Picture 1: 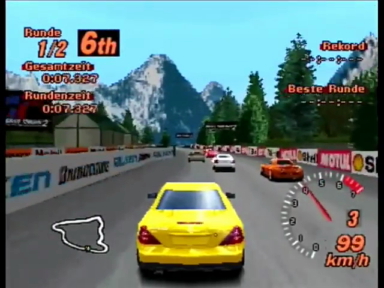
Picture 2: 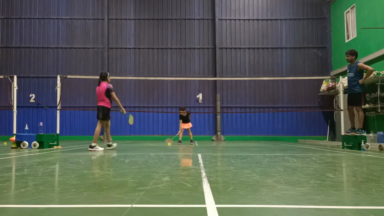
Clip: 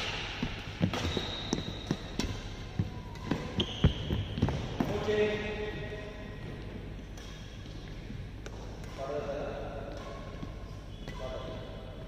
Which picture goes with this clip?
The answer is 2